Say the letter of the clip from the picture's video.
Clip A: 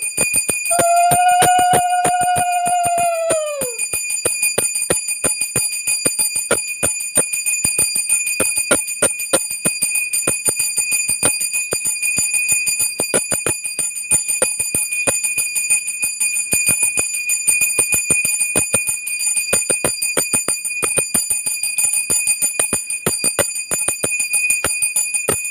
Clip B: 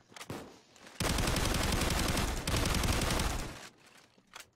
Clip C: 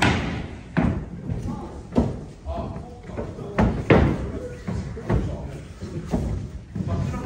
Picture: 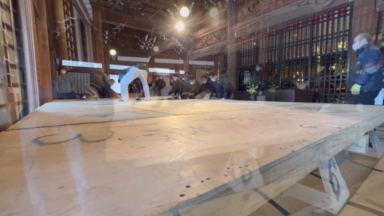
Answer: C